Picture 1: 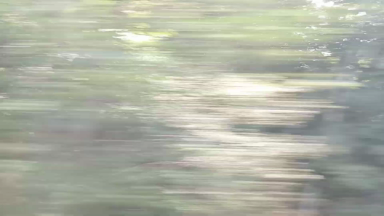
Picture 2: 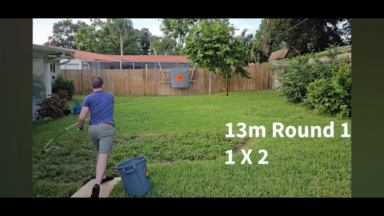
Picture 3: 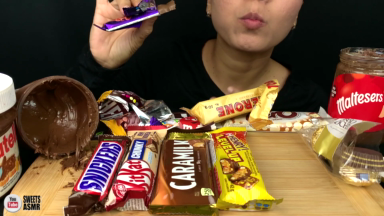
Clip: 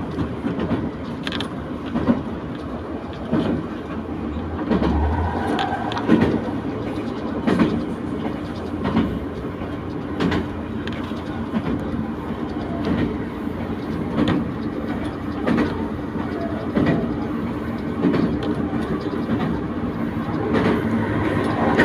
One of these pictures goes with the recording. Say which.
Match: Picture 1